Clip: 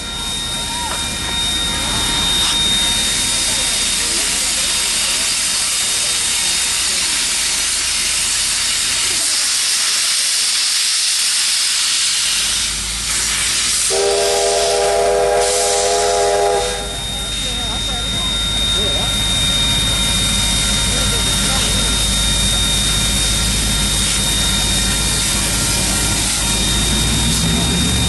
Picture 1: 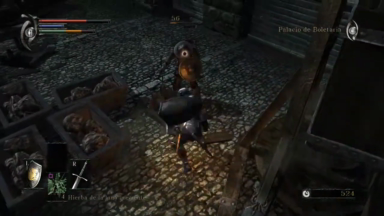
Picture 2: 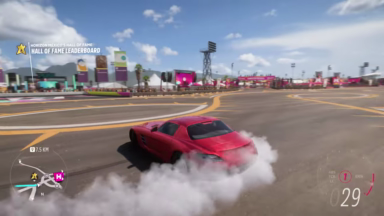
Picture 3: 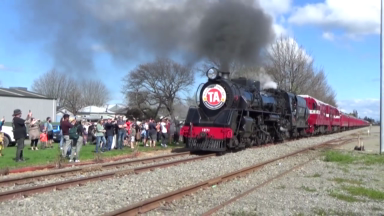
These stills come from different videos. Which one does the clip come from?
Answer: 3